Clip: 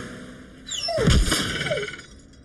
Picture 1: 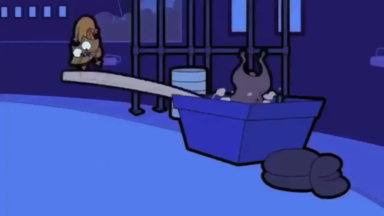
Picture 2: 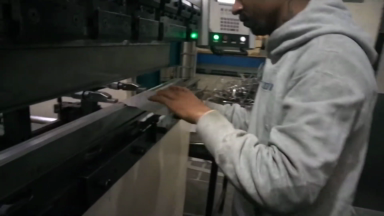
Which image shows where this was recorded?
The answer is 1